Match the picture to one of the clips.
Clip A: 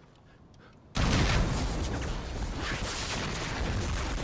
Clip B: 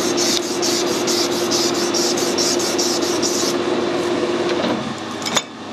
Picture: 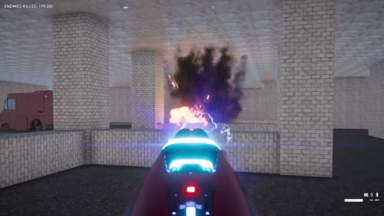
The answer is A